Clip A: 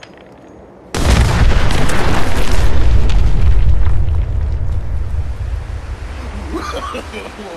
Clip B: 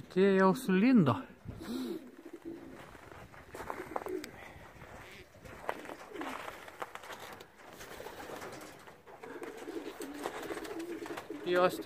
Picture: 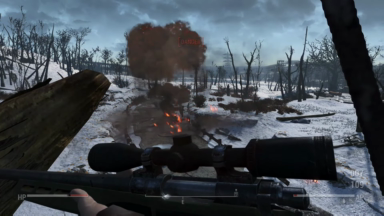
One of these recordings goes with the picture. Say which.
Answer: A